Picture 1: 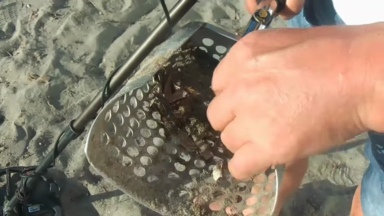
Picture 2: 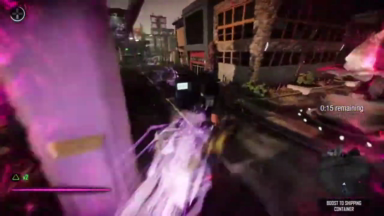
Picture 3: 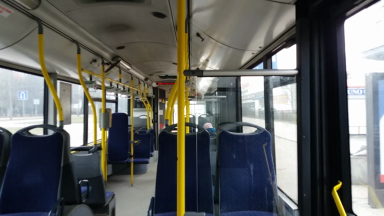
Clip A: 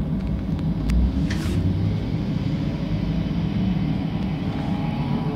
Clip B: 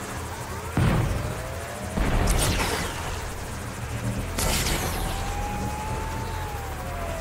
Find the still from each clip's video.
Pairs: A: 3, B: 2